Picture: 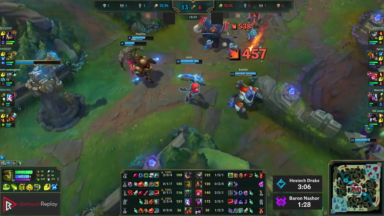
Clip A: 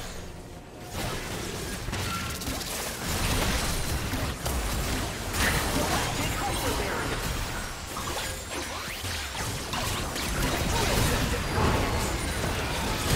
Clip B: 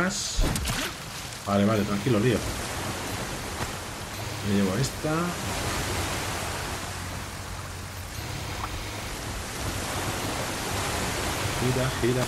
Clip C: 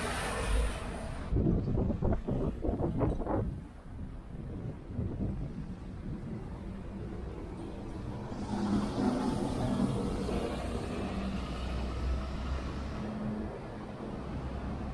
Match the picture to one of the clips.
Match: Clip A